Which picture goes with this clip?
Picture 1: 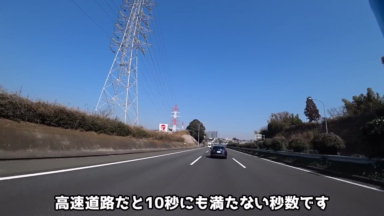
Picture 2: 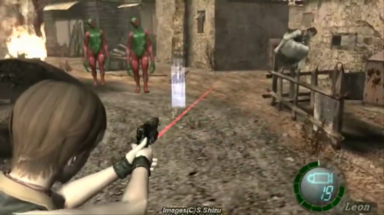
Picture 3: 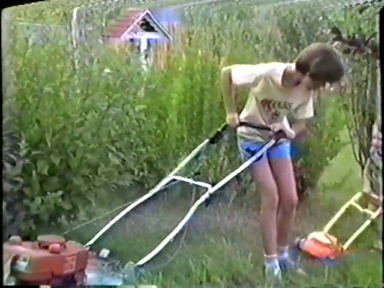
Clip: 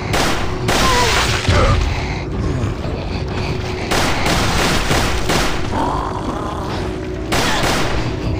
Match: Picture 2